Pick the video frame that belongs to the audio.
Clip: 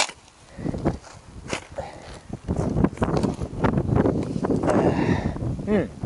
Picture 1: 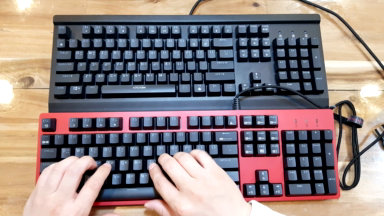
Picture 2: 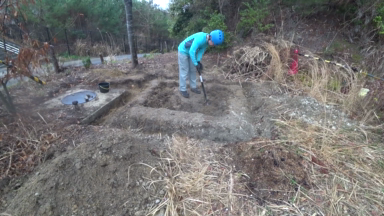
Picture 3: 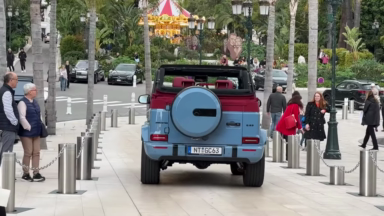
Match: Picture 2